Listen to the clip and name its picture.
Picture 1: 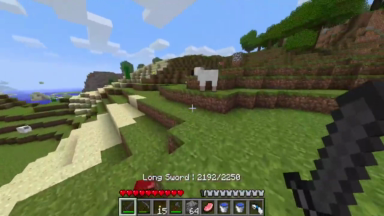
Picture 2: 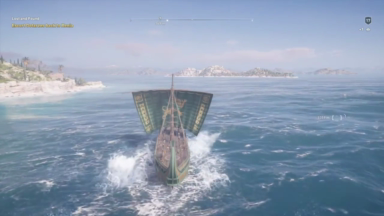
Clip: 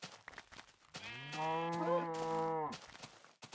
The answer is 1